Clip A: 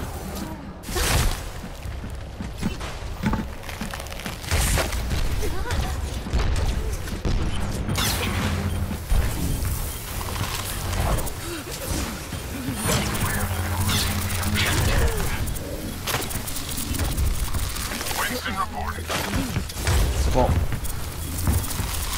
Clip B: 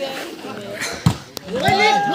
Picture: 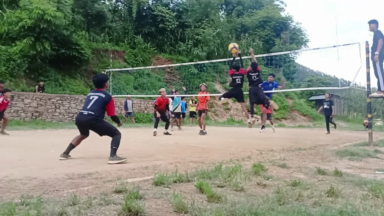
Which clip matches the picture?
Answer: B